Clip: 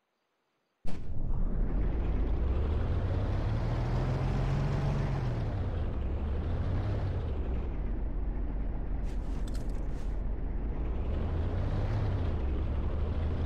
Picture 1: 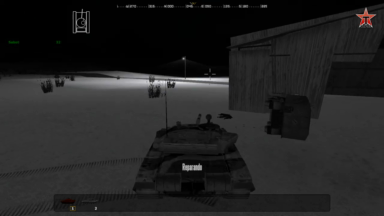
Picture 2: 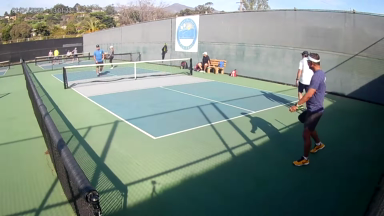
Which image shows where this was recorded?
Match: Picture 1